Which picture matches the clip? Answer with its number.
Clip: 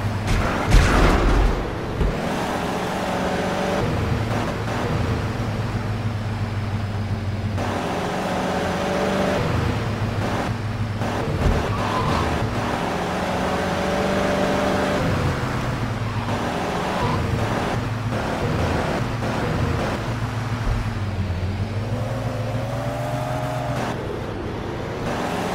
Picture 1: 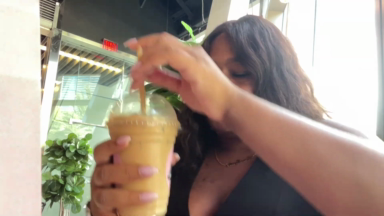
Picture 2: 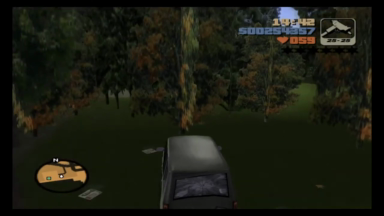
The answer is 2